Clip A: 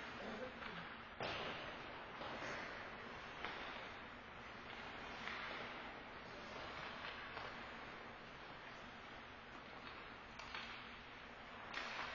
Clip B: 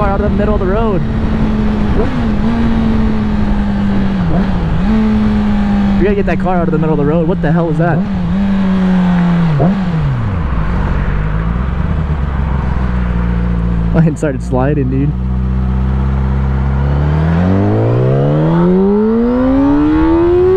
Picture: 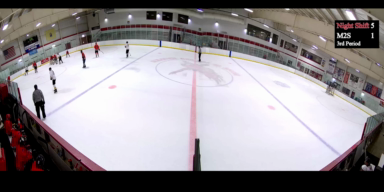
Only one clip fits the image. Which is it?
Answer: A